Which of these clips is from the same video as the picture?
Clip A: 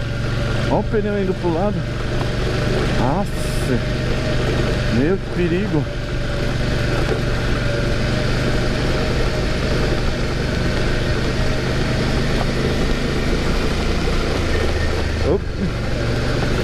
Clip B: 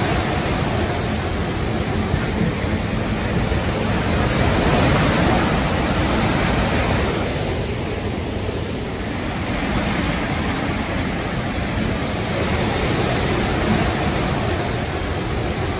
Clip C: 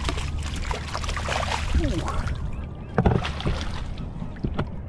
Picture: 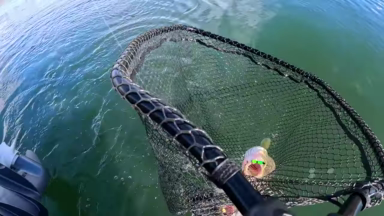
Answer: C